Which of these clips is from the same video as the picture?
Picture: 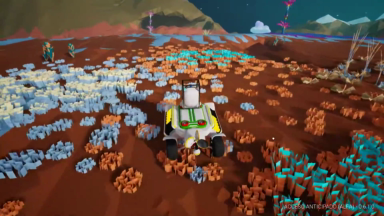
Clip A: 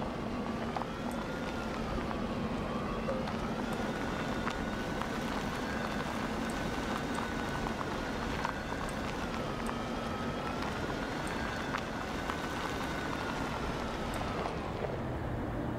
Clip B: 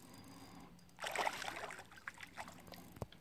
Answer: A